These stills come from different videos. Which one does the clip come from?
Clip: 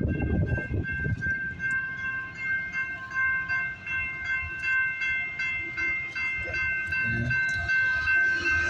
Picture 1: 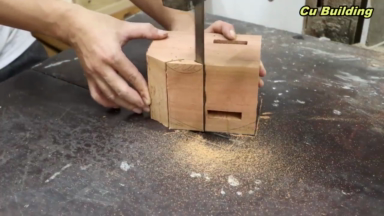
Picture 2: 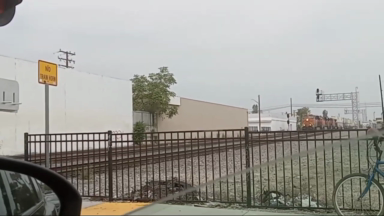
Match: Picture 2